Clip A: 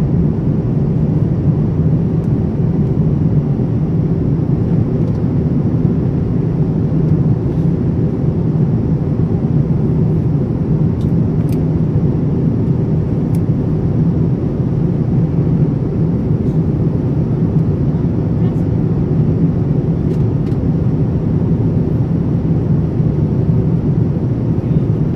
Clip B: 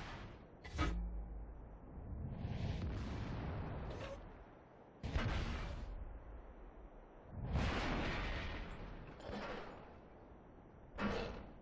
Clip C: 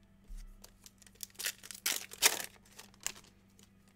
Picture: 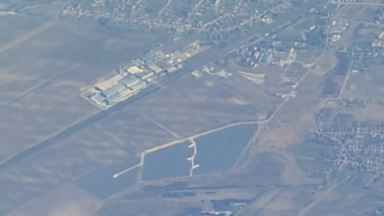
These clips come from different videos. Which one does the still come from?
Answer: A